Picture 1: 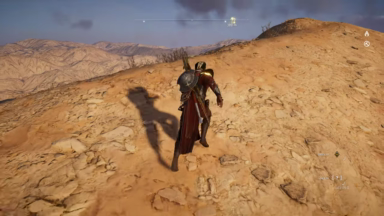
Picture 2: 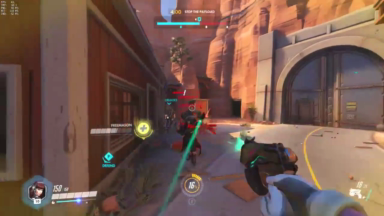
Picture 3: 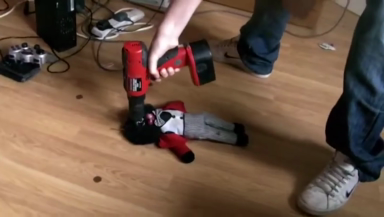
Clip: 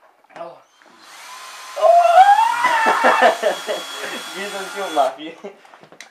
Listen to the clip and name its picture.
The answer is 3